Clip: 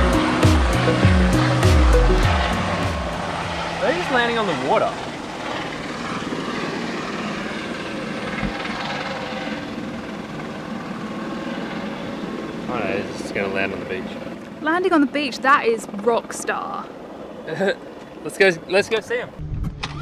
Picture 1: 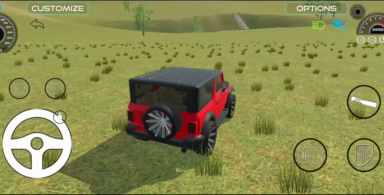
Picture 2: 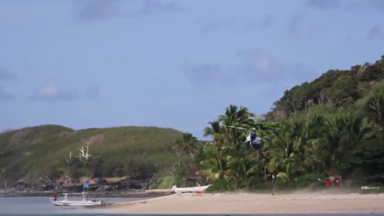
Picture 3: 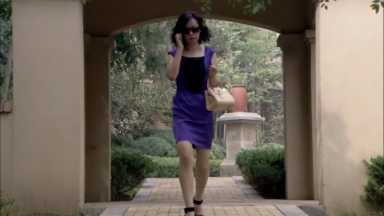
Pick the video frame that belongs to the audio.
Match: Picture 2